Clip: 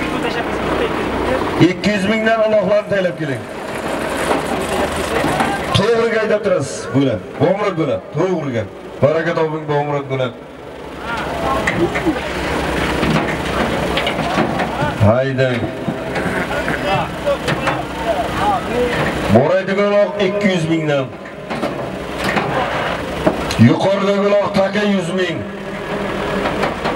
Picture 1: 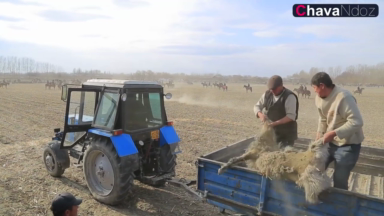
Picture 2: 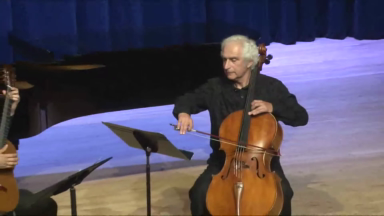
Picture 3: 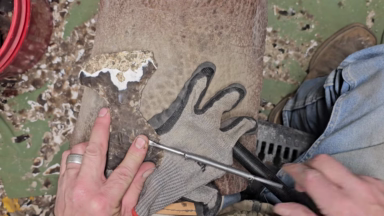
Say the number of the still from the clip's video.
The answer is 1